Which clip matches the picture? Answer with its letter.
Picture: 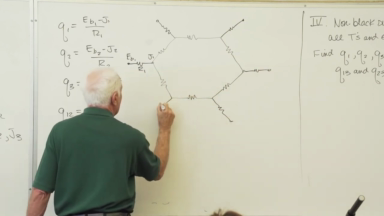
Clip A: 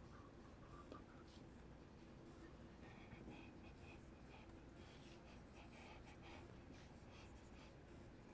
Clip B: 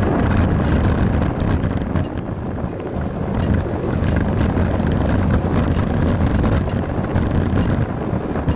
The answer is A